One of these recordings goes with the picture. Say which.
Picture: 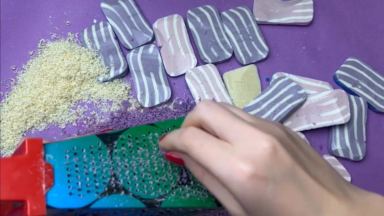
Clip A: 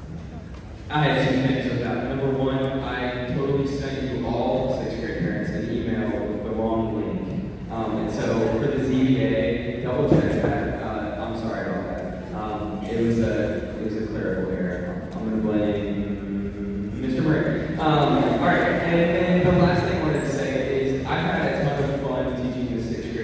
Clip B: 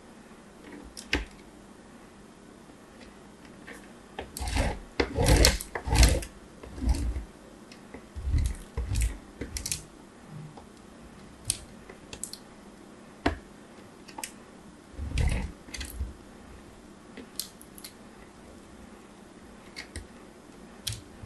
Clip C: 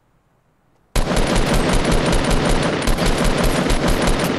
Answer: B